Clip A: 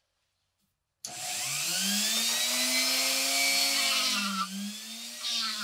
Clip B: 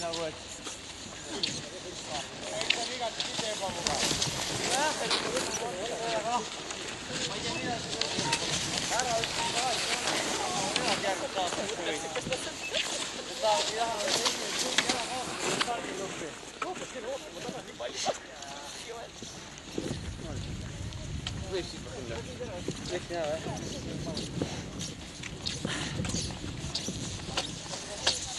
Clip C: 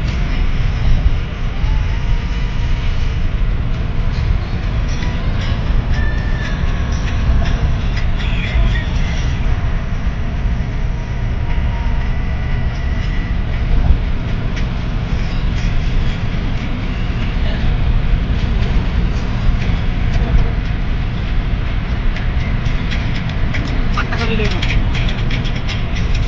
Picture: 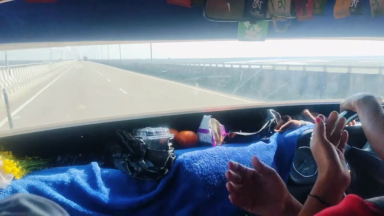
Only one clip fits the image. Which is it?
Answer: C